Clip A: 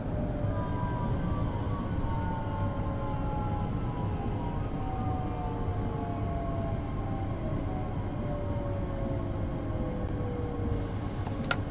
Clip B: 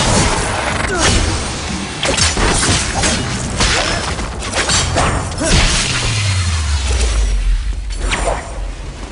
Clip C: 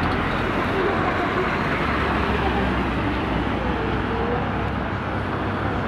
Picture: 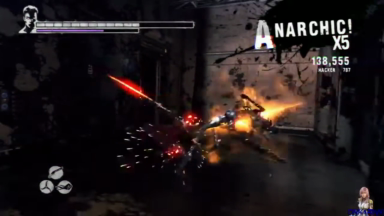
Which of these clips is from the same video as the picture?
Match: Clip B